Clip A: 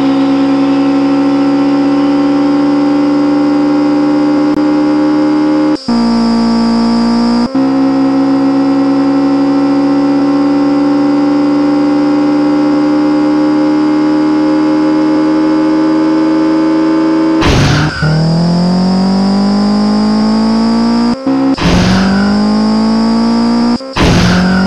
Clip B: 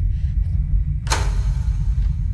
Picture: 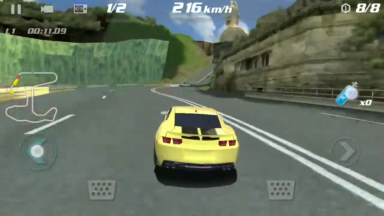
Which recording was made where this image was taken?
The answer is A